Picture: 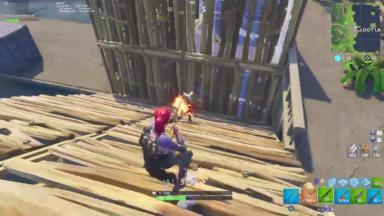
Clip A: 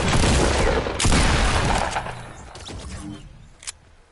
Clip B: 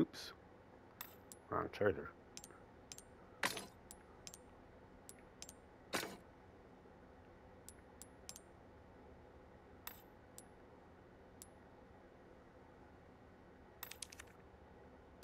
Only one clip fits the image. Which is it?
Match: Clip A